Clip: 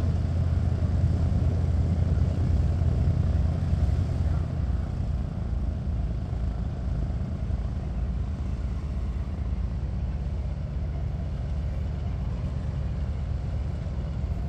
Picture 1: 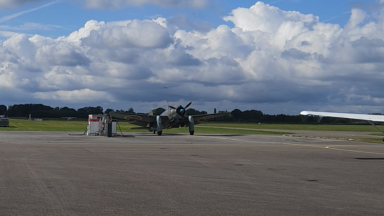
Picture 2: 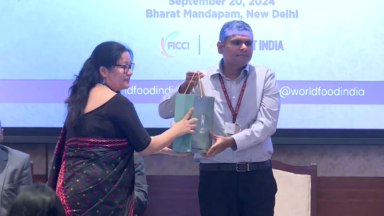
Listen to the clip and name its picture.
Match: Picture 1